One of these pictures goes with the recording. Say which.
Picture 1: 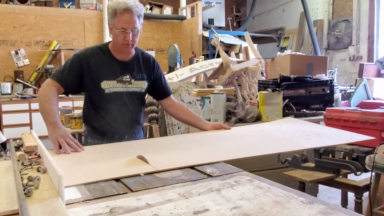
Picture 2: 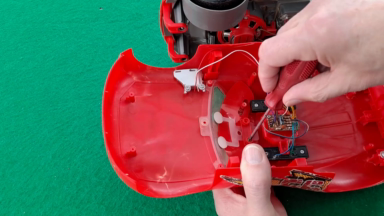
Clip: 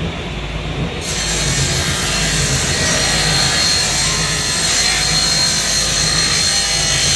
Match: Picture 1